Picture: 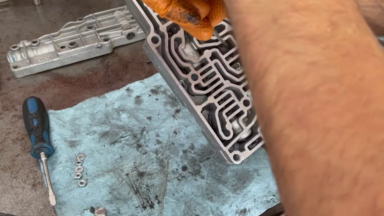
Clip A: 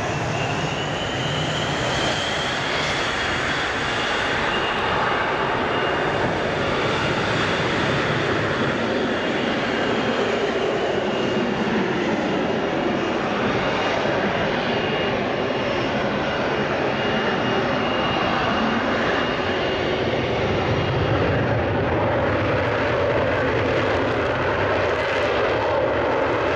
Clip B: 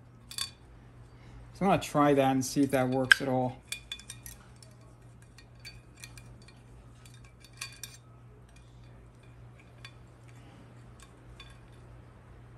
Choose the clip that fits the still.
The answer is B